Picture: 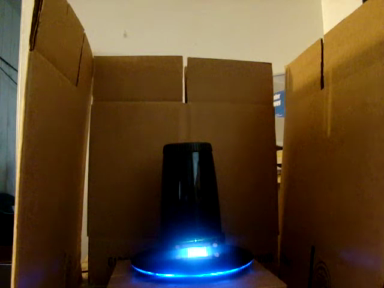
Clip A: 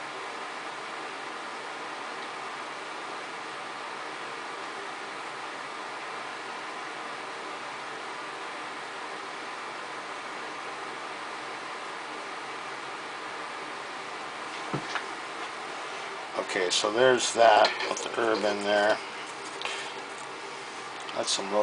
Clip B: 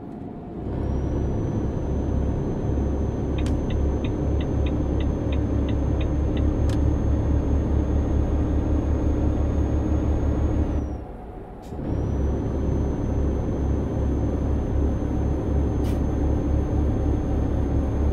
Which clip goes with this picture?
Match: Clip A